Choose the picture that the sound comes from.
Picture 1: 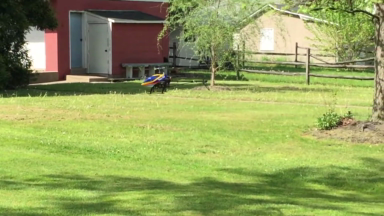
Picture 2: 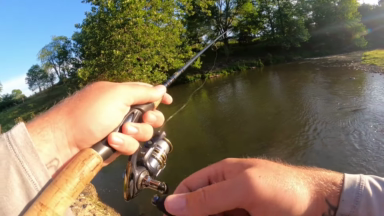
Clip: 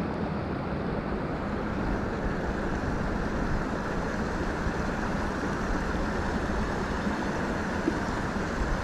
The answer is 2